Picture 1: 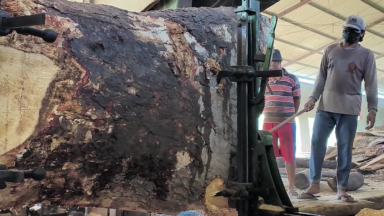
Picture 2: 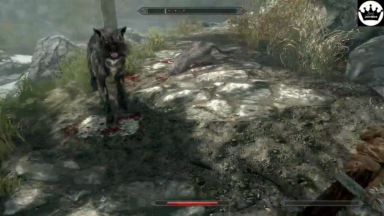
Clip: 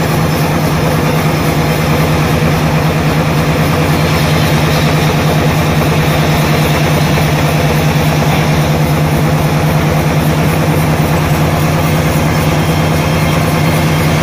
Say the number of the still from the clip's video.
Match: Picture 1